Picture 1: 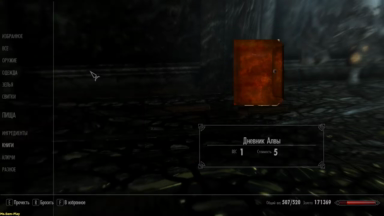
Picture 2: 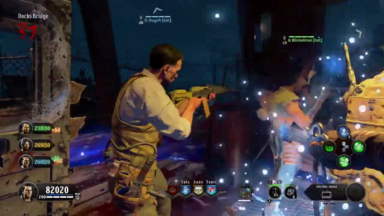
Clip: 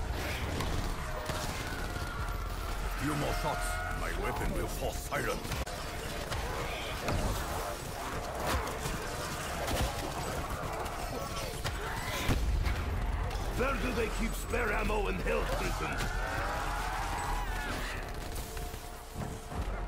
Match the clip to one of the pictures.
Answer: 2